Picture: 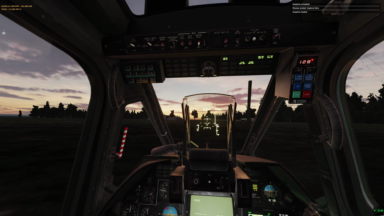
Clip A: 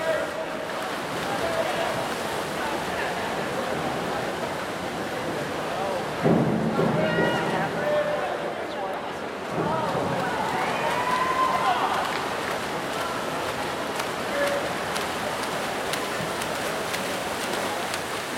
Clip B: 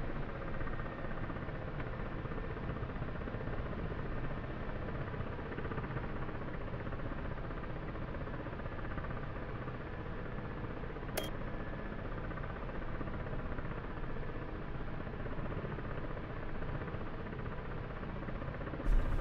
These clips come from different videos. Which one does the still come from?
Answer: B